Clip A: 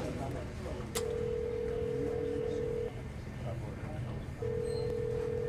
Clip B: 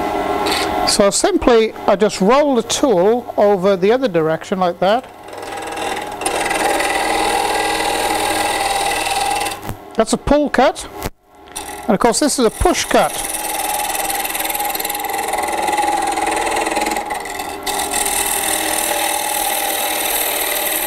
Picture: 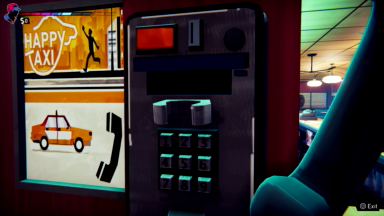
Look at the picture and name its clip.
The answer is A